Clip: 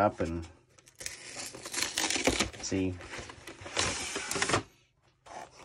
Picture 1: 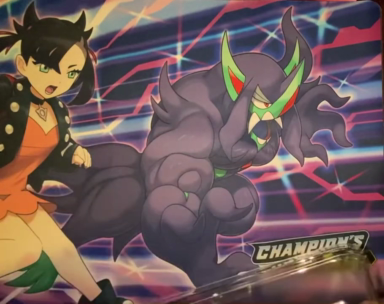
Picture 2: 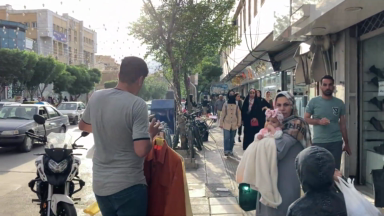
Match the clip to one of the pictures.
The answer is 1